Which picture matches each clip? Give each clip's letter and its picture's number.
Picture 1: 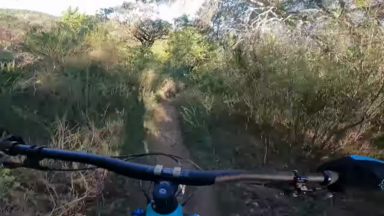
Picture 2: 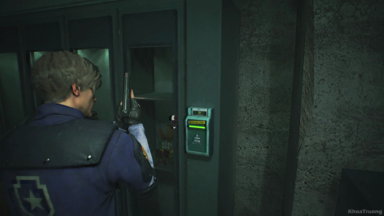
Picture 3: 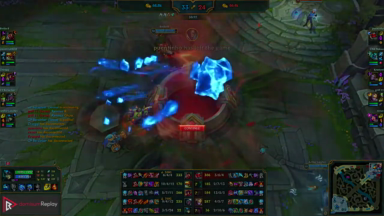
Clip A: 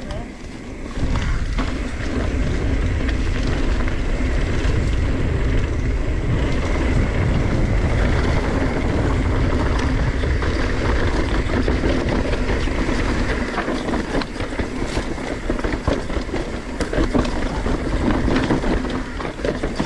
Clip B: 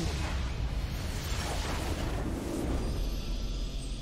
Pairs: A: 1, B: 3